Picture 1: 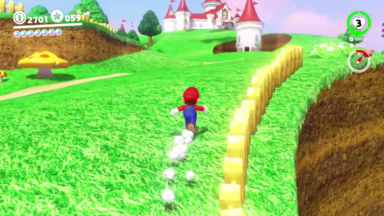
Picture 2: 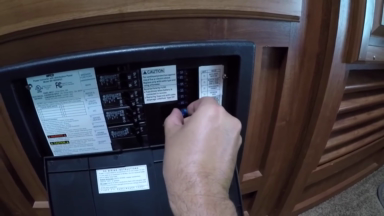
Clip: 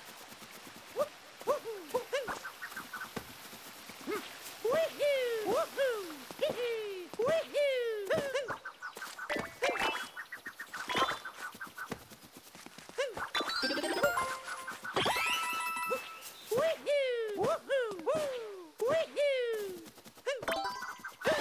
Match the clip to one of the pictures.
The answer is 1